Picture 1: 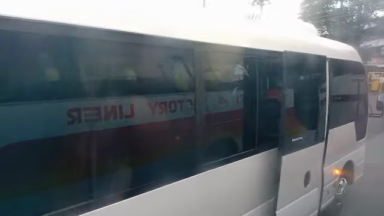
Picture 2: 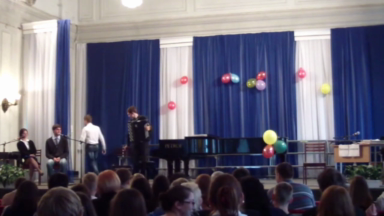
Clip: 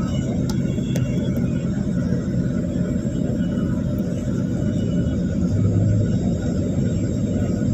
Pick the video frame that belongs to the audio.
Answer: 1